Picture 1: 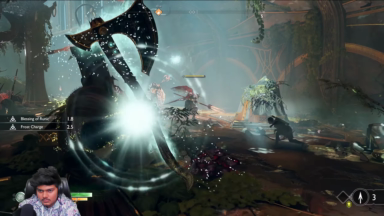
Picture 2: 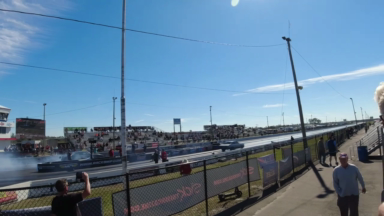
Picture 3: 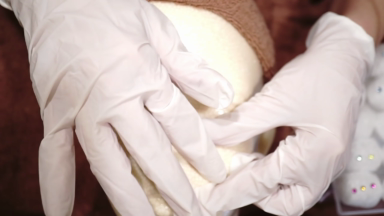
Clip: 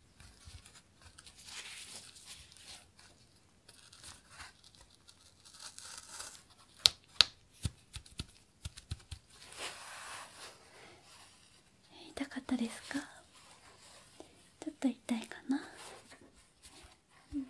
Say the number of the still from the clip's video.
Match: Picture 3